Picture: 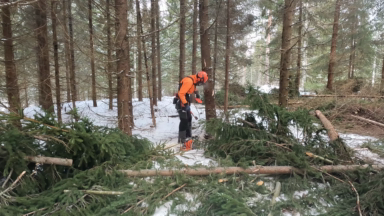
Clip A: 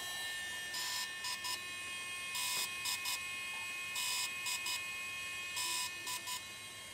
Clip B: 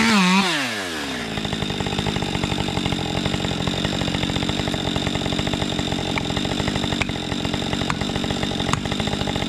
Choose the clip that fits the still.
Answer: B